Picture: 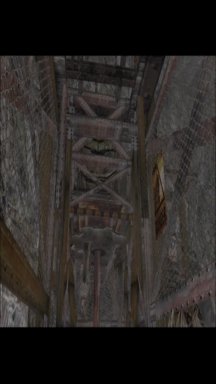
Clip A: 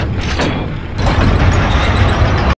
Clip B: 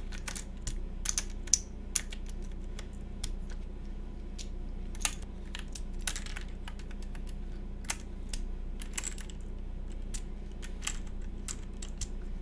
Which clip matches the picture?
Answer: A